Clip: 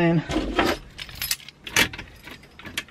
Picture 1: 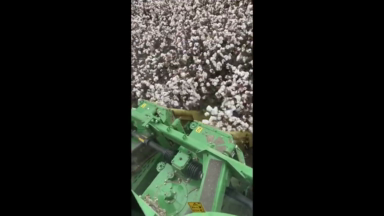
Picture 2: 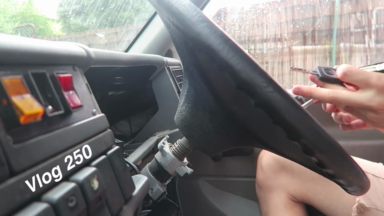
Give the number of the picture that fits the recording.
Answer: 2